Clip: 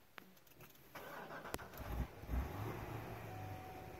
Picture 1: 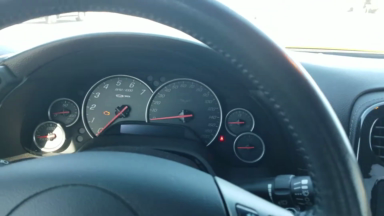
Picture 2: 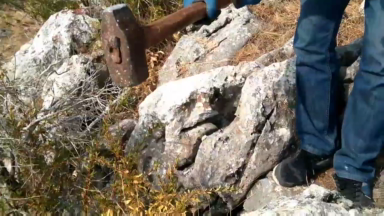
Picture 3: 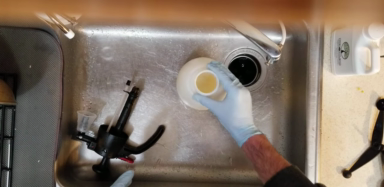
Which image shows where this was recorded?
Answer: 1